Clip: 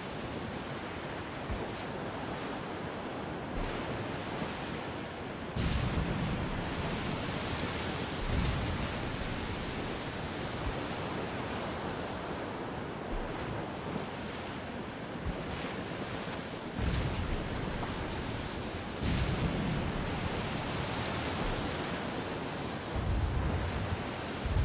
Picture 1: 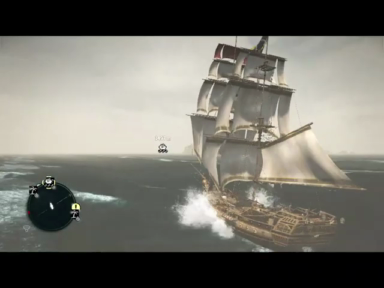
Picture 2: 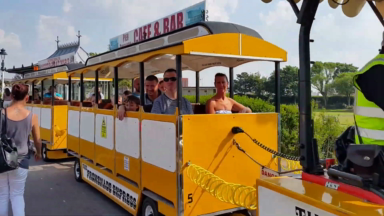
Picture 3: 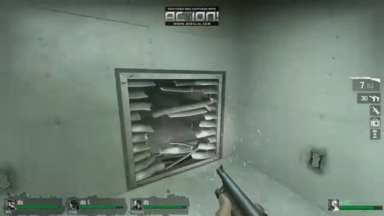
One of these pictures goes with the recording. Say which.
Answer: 1